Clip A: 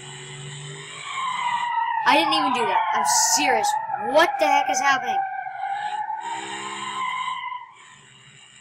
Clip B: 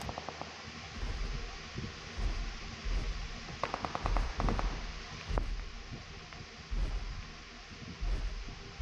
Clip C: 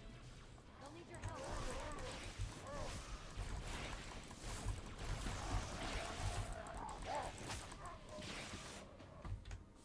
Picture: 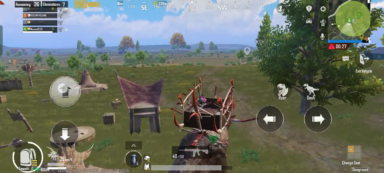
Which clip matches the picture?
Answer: B